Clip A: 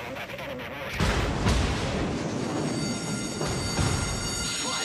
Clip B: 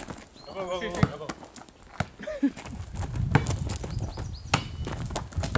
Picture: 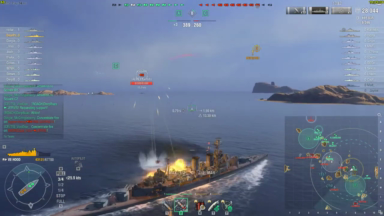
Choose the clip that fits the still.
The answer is A